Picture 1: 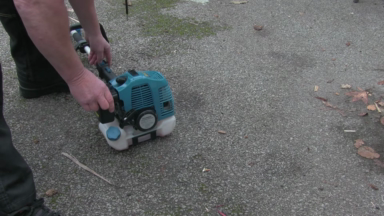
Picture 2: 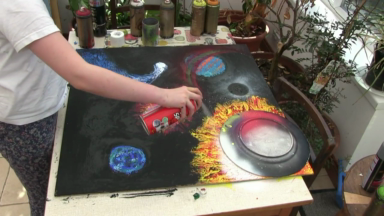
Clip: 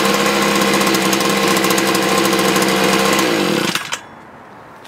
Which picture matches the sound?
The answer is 1